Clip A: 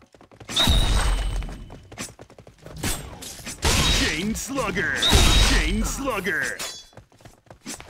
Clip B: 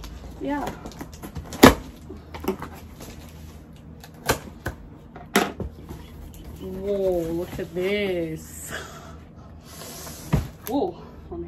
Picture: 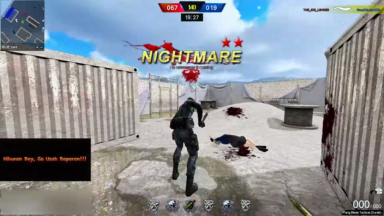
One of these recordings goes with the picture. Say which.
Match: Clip A